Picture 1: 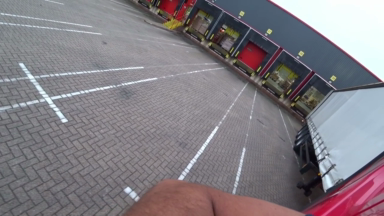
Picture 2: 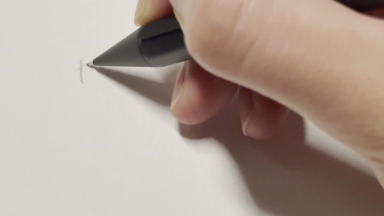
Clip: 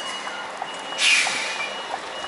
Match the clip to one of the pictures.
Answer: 1